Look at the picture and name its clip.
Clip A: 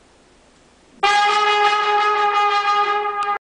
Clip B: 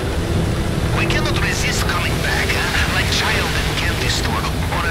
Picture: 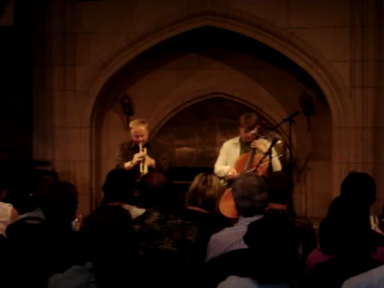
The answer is A